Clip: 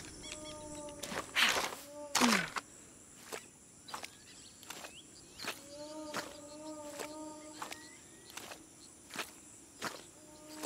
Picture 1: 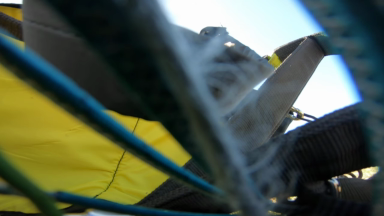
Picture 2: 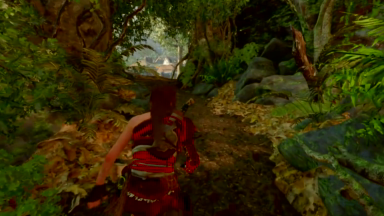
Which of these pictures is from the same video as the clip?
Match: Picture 2